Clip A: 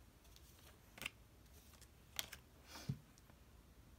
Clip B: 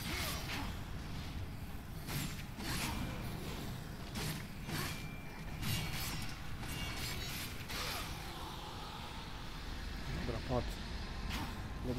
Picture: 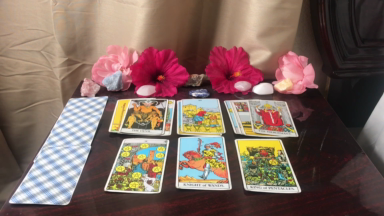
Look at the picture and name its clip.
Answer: A